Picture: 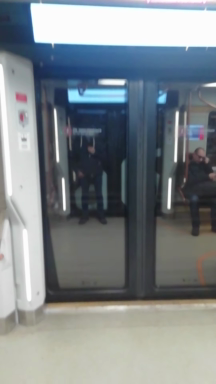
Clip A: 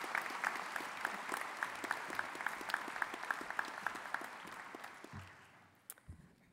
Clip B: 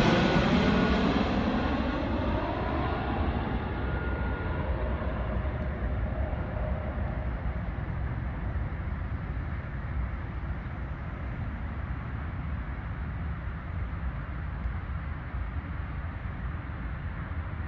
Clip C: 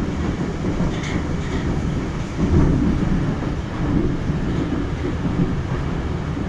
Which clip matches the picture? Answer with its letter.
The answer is C